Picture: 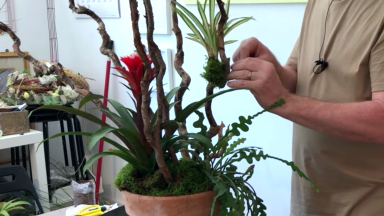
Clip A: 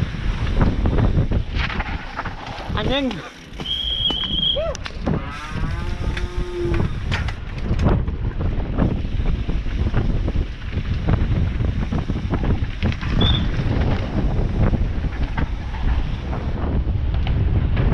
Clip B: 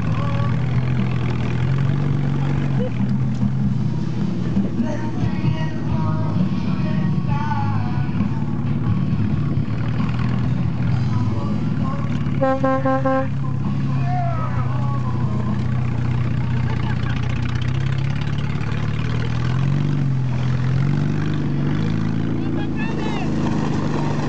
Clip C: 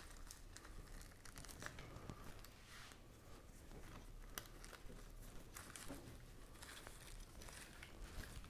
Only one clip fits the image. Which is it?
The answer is C